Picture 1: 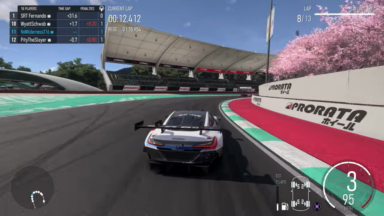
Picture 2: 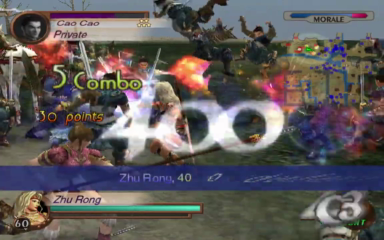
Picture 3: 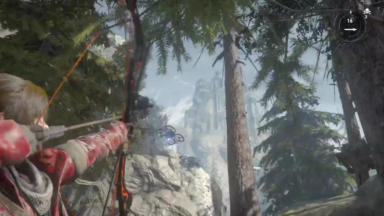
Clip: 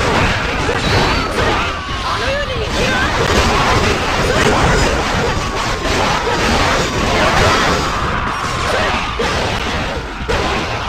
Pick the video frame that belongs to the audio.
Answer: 2